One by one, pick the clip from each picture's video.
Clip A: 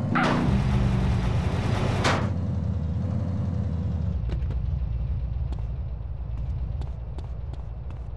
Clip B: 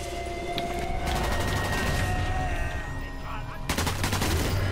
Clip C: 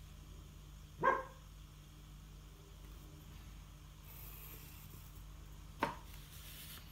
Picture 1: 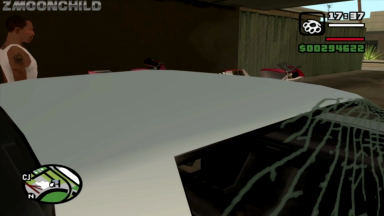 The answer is A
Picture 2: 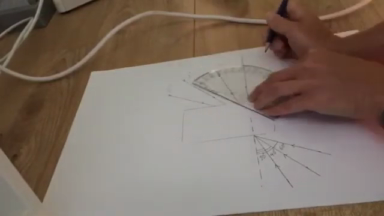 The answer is C